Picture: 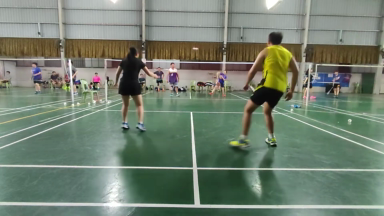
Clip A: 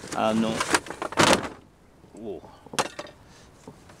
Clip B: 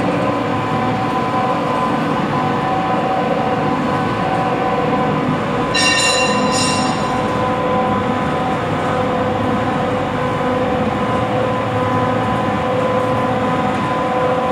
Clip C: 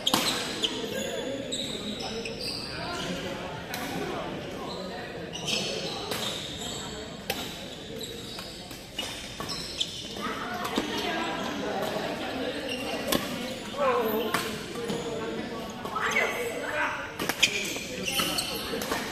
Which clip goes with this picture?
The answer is C